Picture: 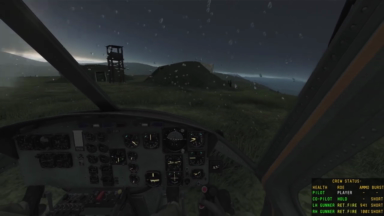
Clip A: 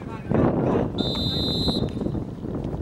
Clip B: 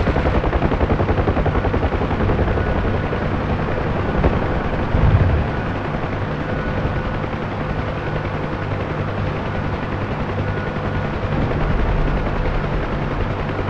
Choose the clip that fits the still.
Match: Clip B